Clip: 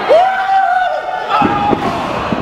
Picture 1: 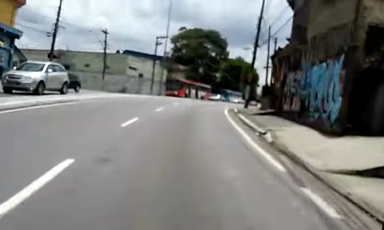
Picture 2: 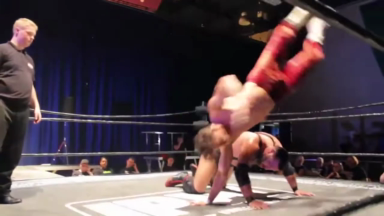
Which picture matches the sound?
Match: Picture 2